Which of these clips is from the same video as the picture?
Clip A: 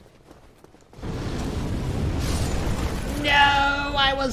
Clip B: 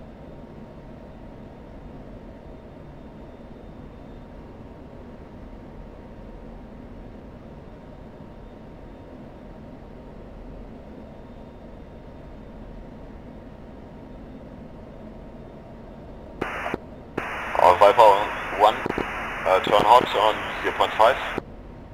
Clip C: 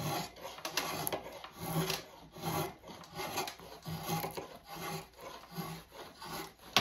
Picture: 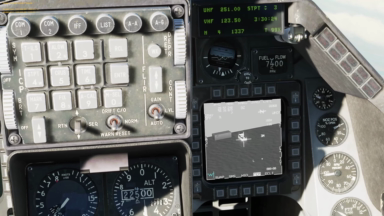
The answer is B